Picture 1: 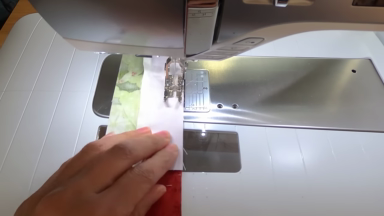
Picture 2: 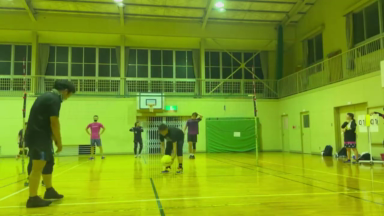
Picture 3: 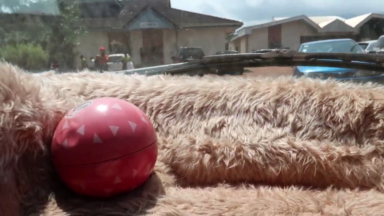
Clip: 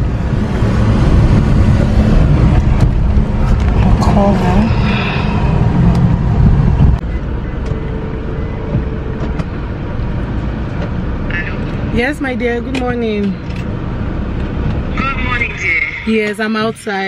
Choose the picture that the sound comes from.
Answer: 3